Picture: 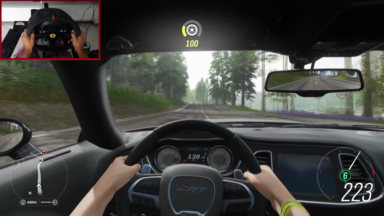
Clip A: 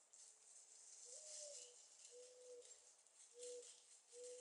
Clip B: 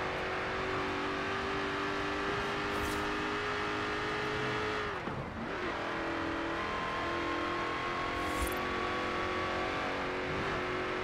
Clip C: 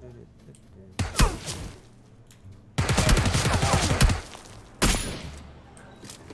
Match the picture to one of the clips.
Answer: B